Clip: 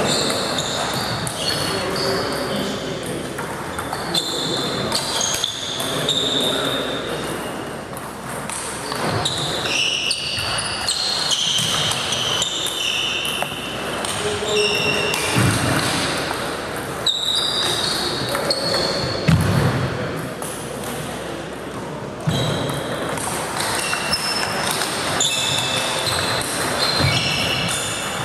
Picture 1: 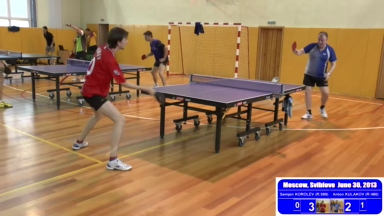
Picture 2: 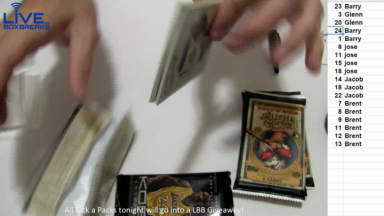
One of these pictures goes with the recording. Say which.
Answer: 1